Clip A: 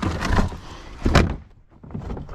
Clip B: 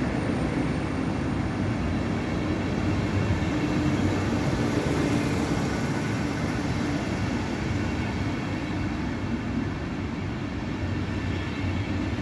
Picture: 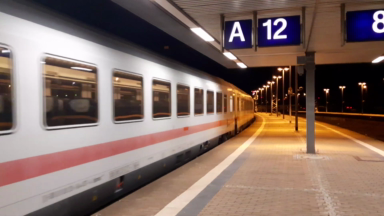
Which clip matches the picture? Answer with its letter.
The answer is B